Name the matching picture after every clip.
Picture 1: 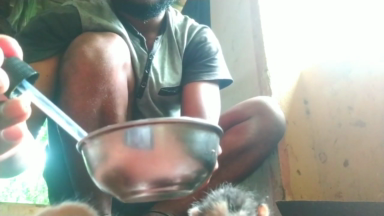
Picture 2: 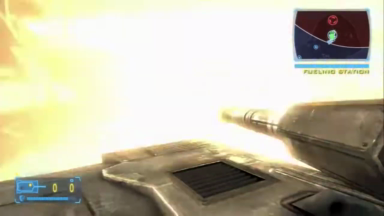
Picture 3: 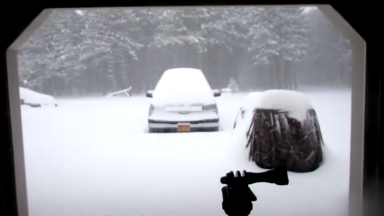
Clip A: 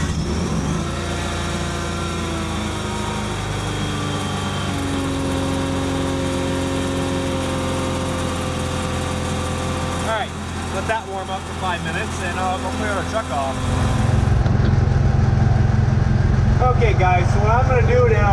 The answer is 3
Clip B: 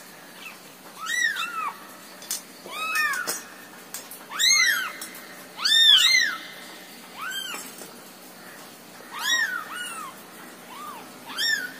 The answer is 1